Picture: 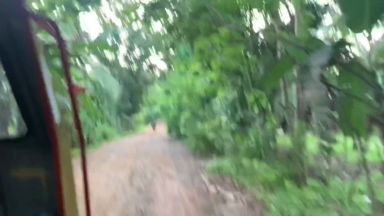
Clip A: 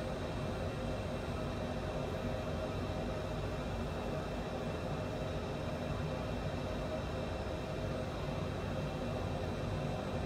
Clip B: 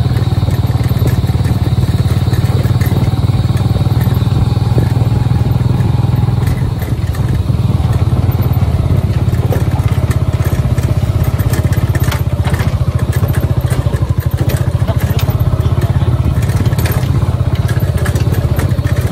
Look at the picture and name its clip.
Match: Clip B